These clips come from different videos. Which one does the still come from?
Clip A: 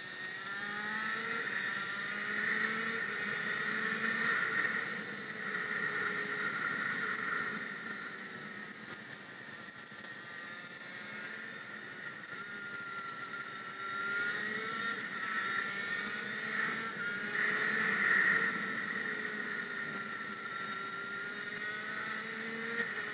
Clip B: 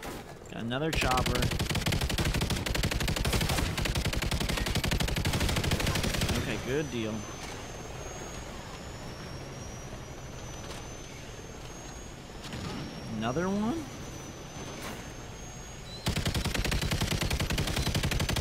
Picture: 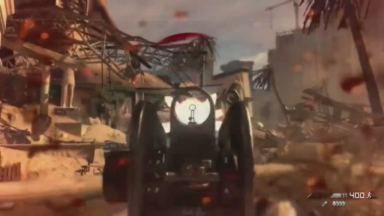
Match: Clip B